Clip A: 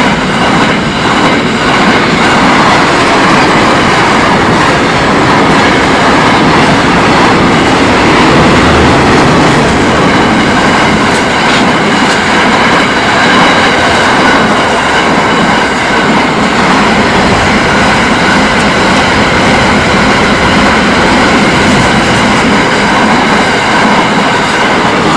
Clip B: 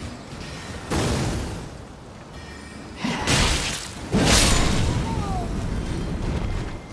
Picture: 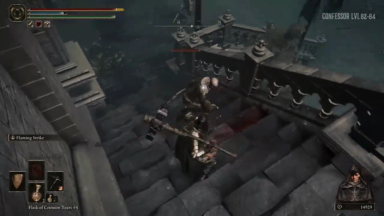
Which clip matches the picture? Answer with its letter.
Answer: B